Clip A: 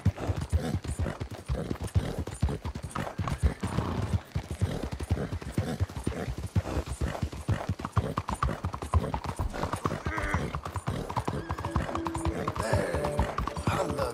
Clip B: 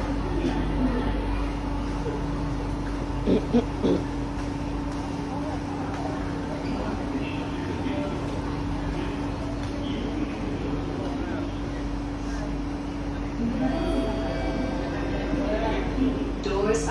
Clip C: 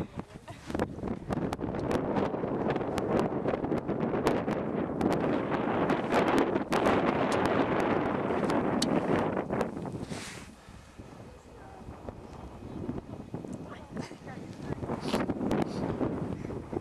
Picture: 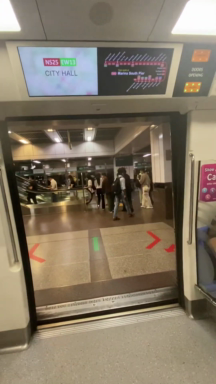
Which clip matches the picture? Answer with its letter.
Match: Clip B